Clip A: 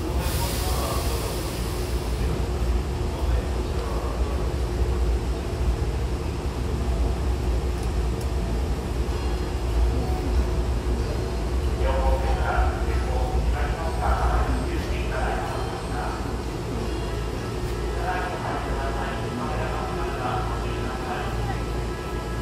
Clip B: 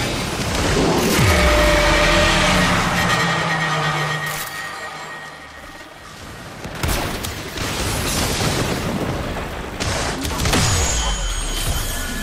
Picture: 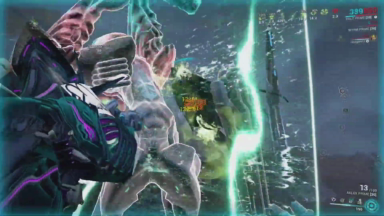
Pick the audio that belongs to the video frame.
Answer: B